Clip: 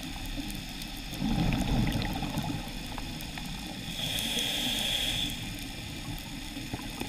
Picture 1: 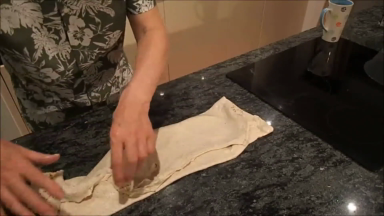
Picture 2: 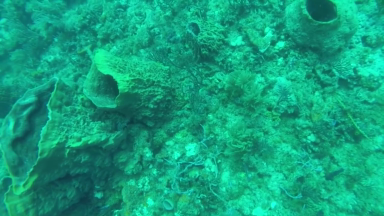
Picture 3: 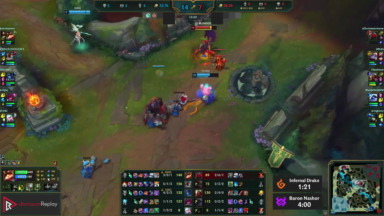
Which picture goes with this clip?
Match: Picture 2